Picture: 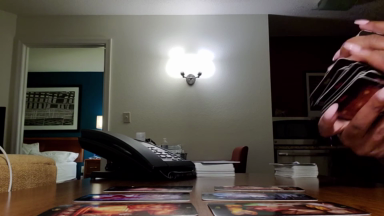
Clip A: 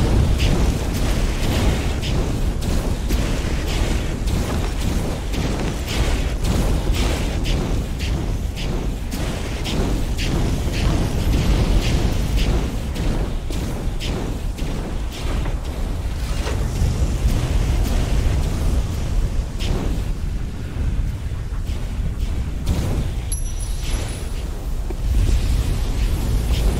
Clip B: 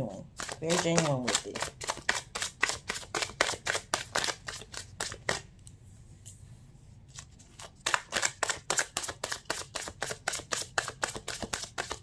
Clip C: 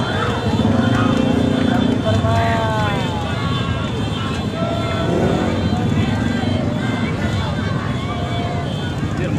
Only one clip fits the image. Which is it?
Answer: B